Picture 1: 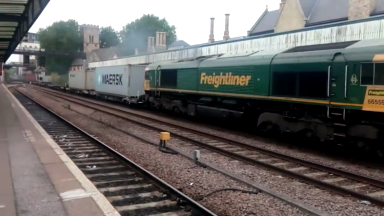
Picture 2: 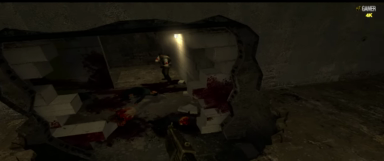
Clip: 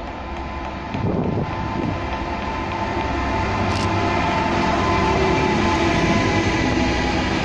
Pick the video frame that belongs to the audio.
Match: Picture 1